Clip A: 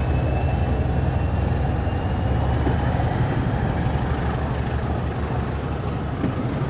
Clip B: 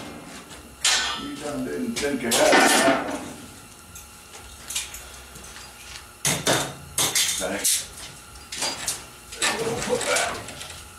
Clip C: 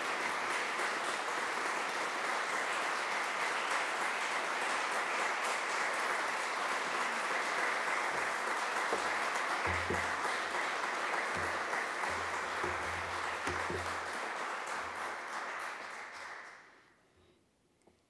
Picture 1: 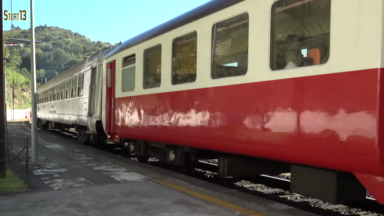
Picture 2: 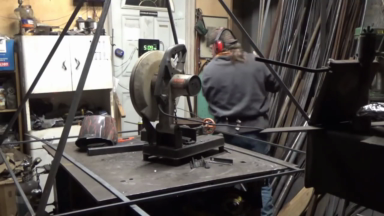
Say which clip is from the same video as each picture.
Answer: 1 A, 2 B